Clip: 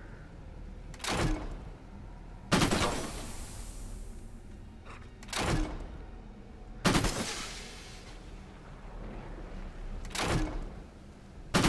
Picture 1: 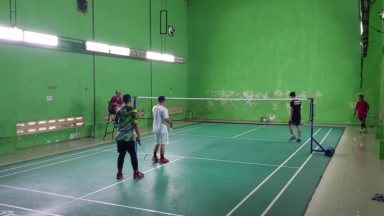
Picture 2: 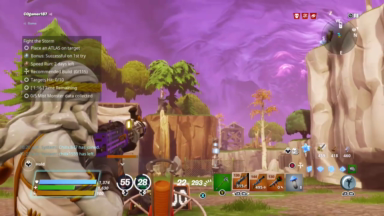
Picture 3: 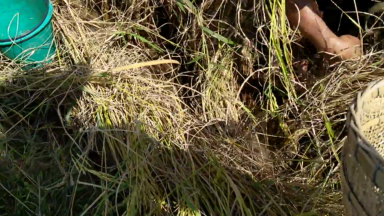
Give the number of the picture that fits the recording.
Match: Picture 2